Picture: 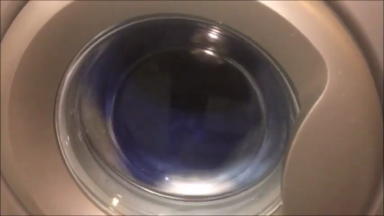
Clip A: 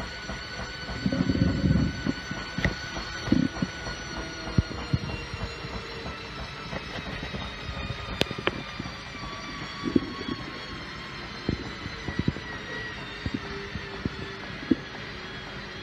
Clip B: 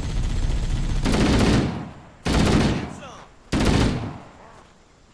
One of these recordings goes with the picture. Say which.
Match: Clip A